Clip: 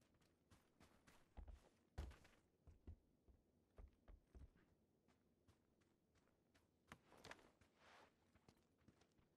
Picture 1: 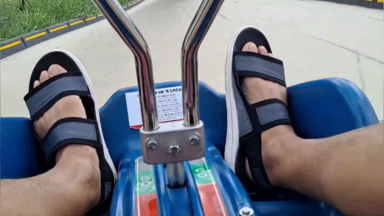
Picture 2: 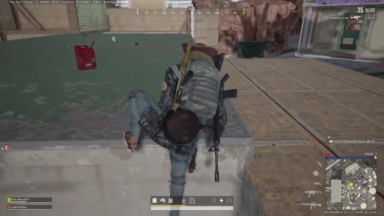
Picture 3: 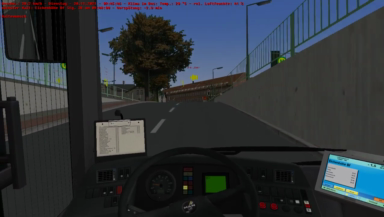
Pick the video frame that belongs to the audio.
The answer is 2